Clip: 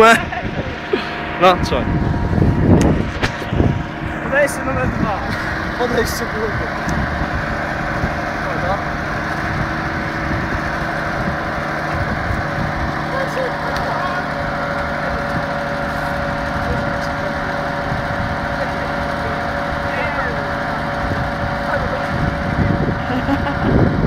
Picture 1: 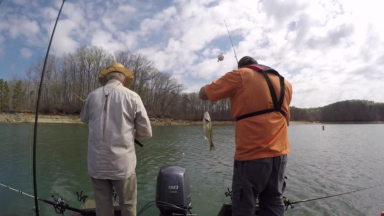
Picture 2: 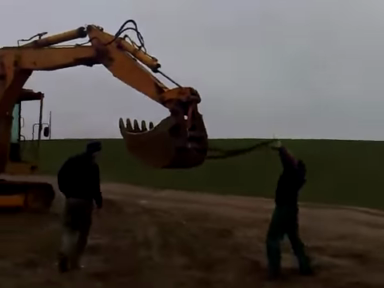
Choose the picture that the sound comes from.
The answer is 2